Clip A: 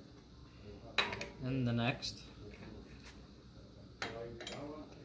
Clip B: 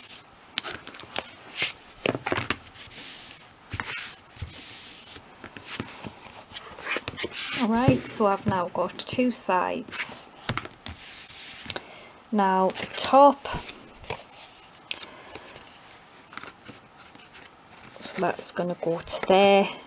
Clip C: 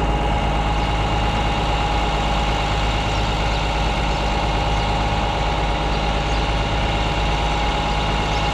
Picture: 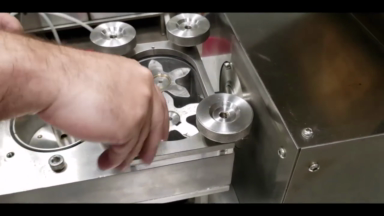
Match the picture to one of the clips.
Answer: A